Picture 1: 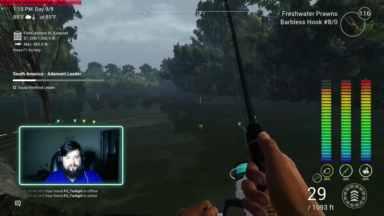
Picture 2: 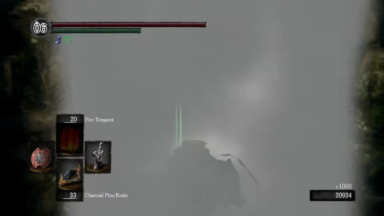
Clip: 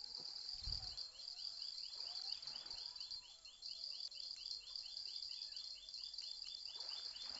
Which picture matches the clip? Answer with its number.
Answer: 1